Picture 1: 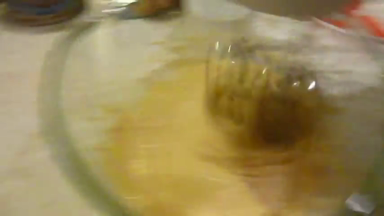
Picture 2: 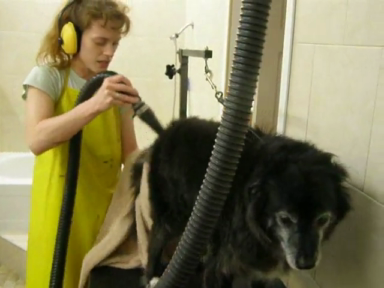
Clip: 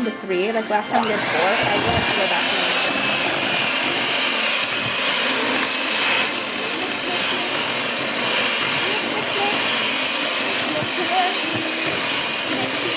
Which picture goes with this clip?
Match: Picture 1